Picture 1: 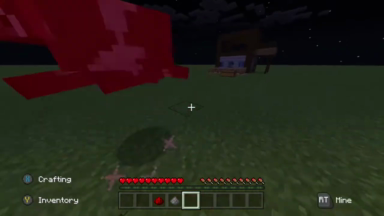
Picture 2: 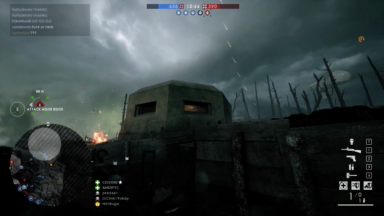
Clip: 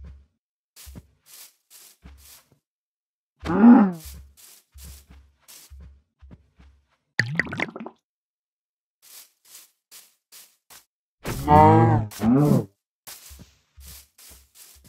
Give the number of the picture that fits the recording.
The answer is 1